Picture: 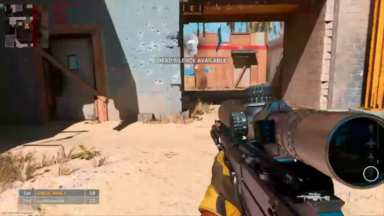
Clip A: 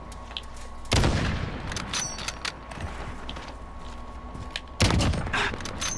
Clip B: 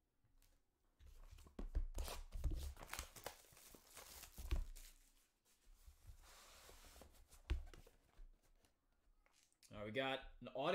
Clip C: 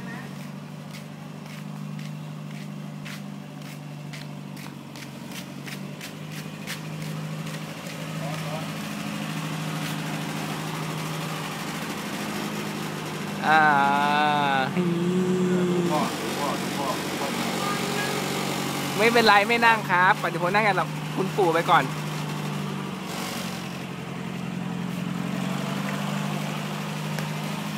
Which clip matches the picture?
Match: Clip A